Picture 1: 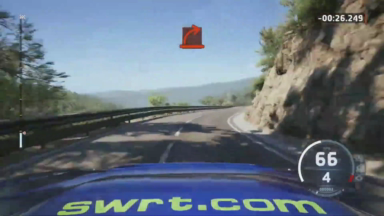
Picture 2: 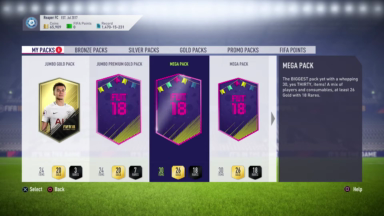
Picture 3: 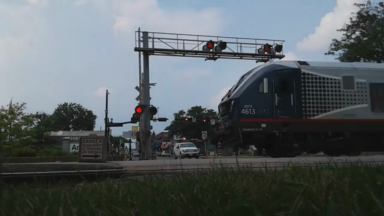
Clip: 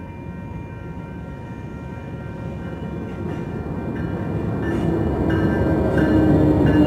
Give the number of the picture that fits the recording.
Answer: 3